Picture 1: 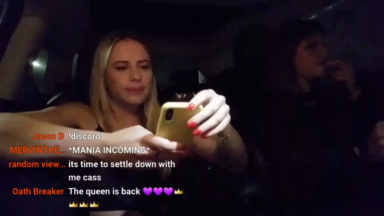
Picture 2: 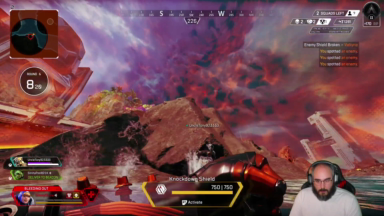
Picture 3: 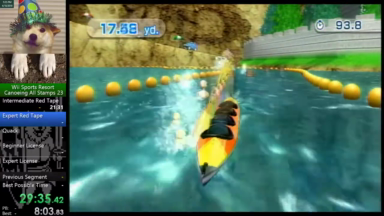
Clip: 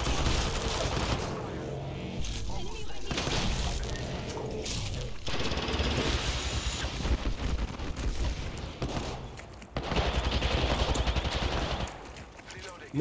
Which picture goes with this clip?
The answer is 2